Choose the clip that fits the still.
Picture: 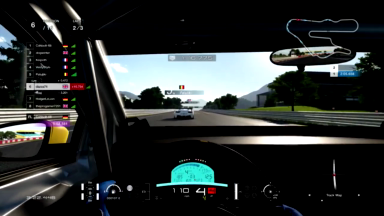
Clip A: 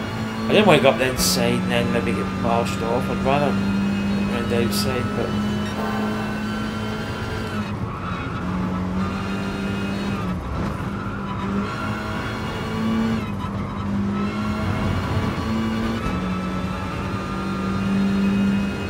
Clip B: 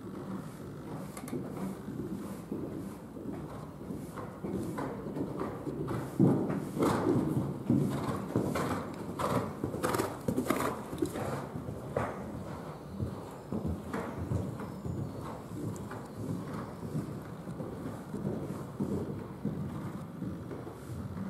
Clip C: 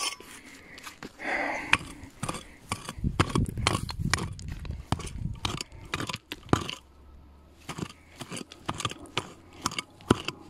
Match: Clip A